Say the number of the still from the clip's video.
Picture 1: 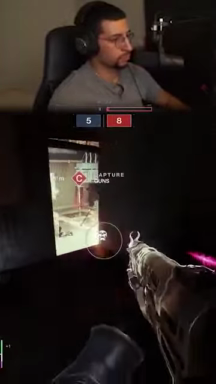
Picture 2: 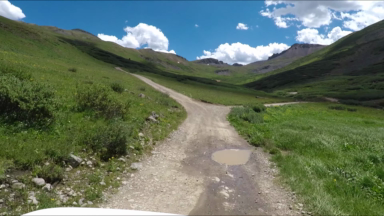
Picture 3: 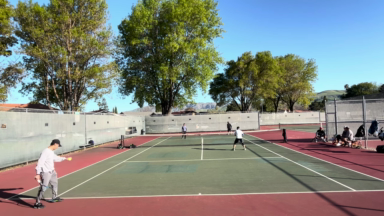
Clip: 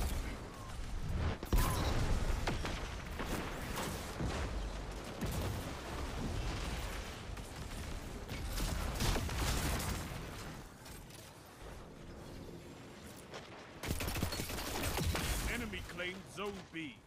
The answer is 1